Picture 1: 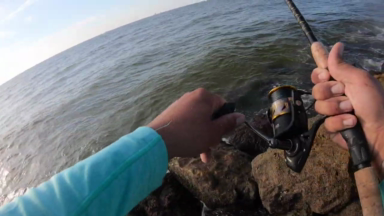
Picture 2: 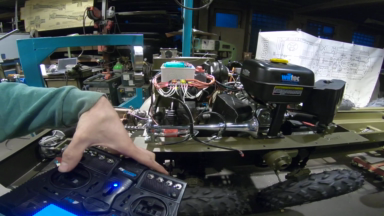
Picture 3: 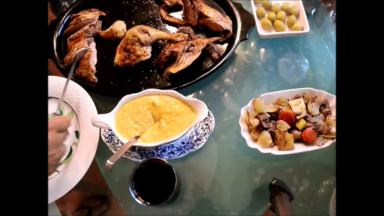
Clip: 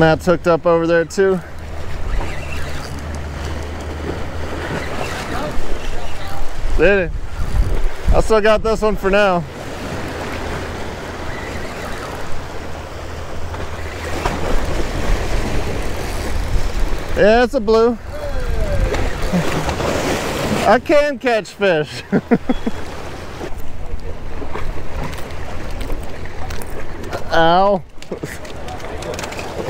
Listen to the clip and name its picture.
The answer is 1